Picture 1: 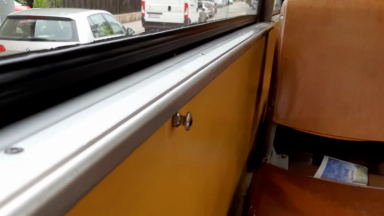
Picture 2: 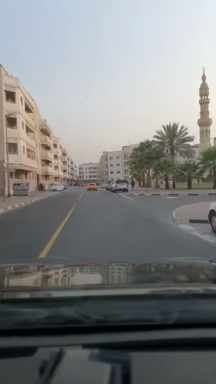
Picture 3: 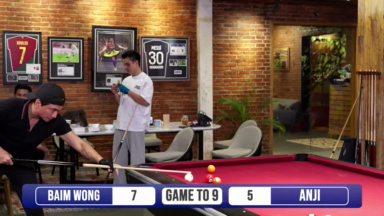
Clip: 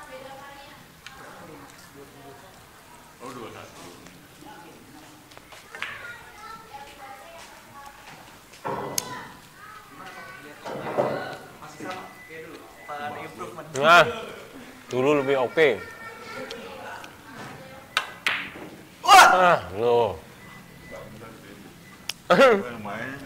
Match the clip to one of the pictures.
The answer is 3